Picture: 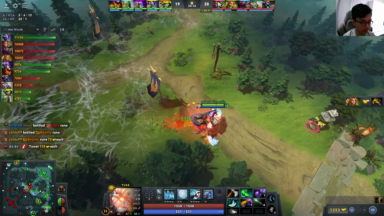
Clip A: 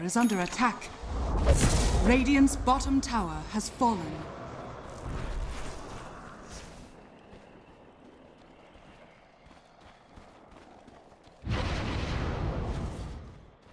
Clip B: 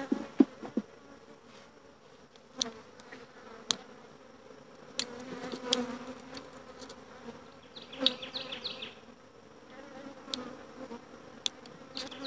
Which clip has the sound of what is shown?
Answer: A